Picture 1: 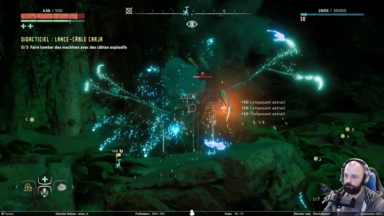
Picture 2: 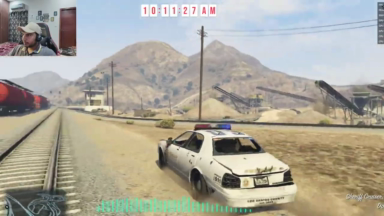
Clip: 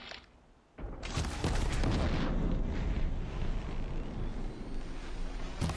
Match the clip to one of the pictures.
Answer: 1